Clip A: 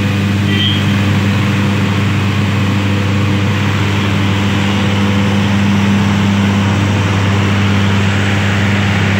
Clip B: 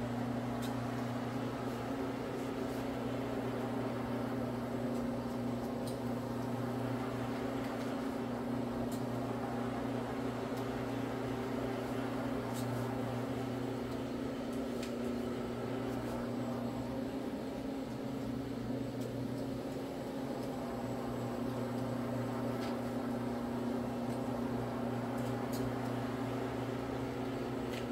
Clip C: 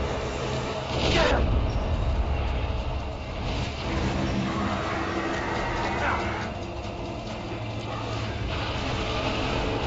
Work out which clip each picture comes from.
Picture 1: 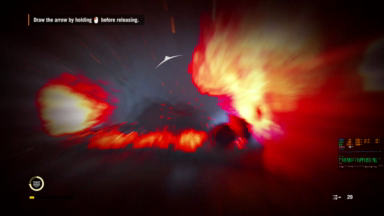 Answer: C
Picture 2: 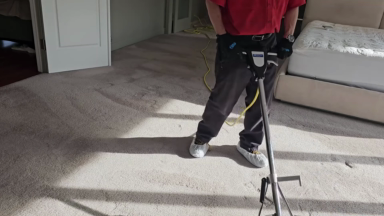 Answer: B